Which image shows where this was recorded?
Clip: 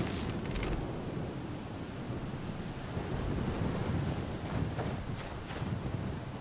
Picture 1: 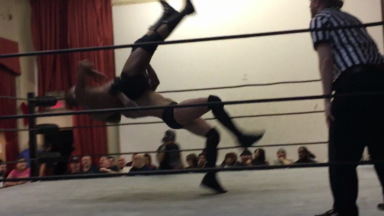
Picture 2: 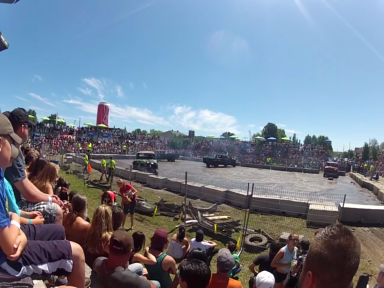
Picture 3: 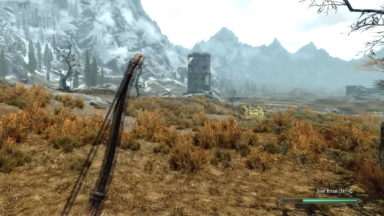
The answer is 3